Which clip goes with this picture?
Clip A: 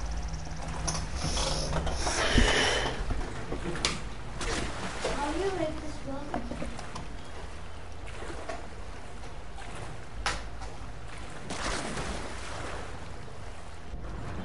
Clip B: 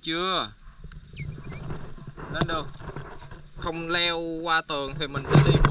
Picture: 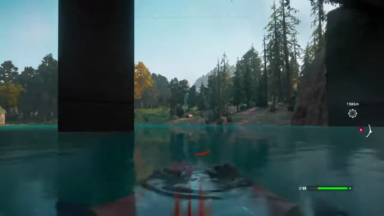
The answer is A